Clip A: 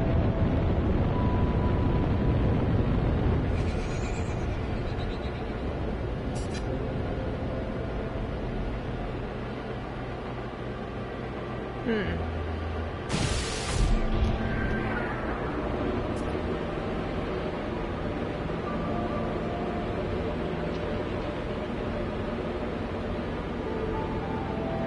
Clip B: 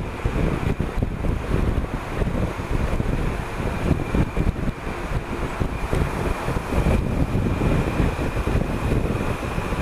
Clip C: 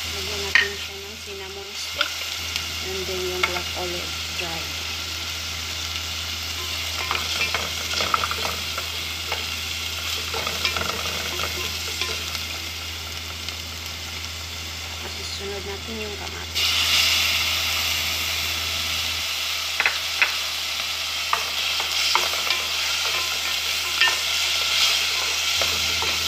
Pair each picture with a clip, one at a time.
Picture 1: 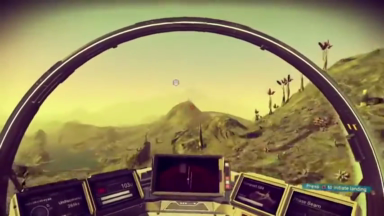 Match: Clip A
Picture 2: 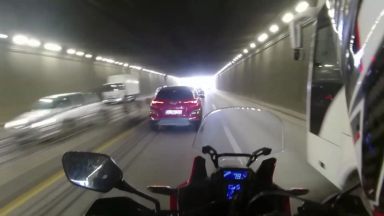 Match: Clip B